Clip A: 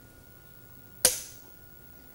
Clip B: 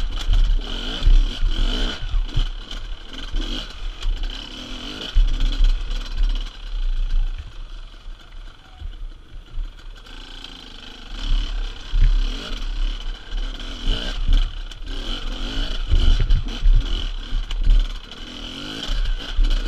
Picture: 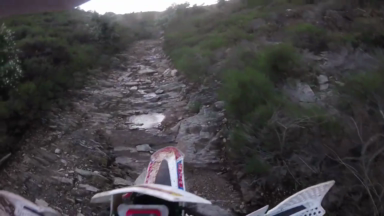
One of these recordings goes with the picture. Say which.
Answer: B